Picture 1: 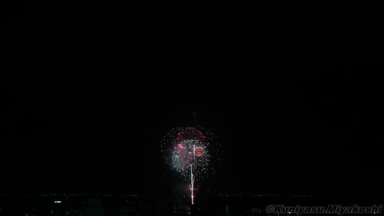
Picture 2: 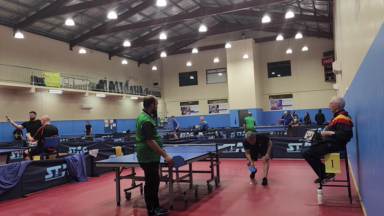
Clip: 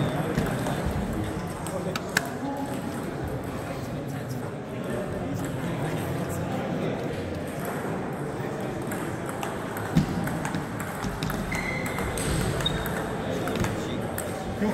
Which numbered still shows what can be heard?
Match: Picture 2